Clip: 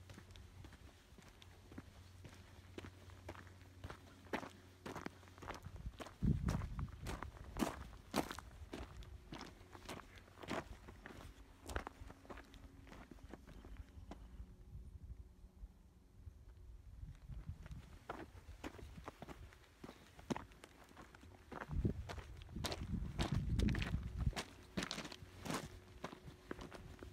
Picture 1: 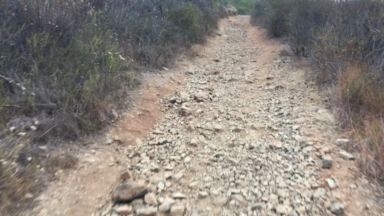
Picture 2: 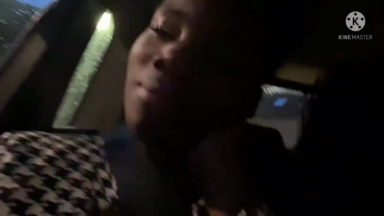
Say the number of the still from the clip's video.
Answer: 1